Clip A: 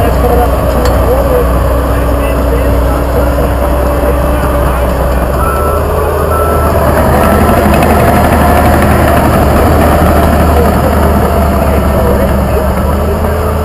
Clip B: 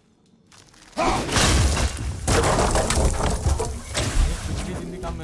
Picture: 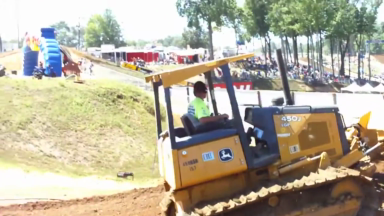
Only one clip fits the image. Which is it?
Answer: A